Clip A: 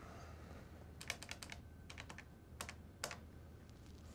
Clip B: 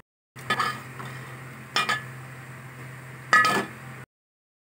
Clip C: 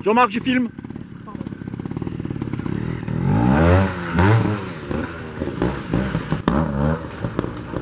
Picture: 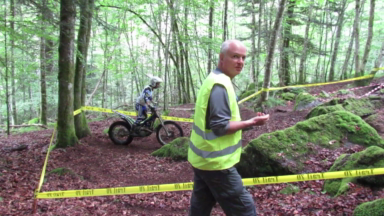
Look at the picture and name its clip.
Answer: C